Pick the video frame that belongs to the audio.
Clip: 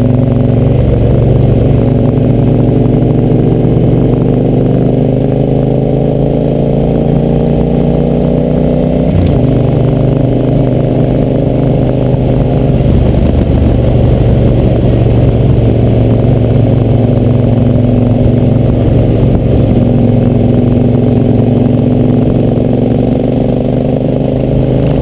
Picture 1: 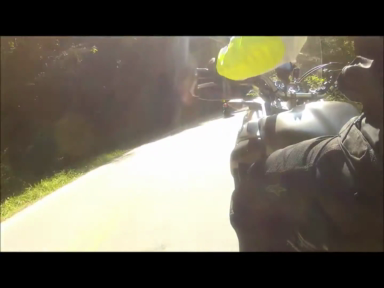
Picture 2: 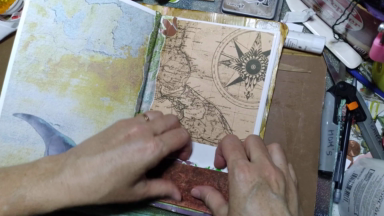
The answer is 1